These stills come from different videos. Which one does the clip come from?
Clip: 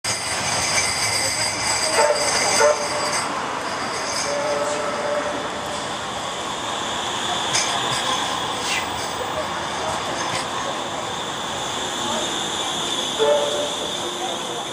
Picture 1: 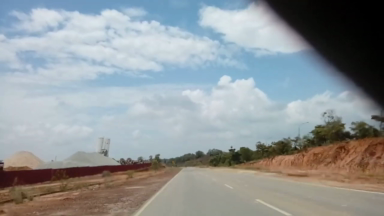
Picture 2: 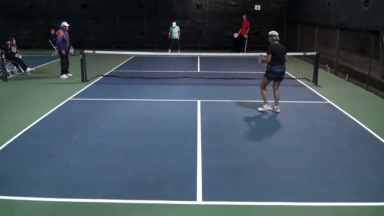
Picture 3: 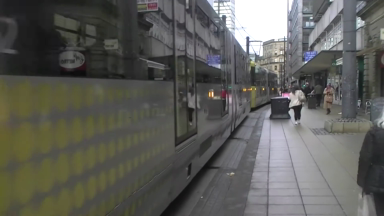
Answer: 3